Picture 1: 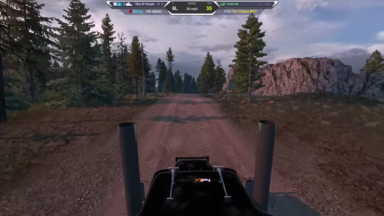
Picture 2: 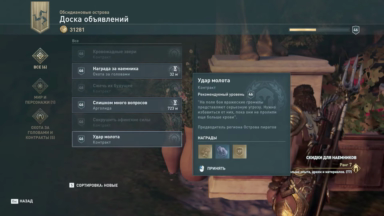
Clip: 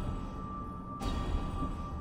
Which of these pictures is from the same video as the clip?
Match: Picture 2